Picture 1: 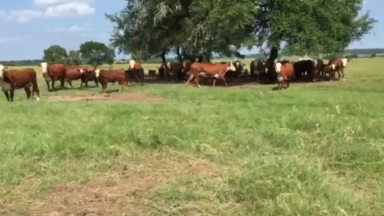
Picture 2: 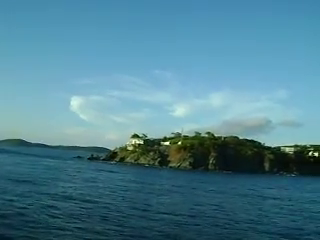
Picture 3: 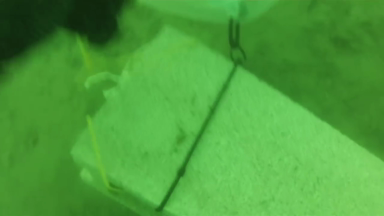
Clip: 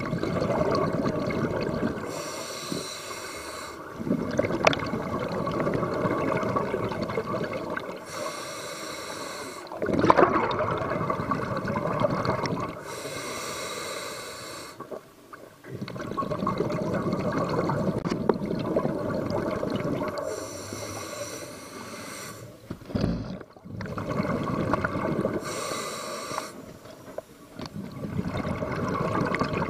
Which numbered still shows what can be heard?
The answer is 3